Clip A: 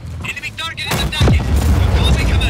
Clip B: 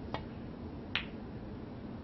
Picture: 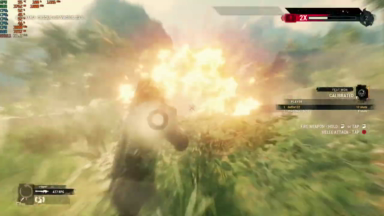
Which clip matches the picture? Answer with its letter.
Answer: A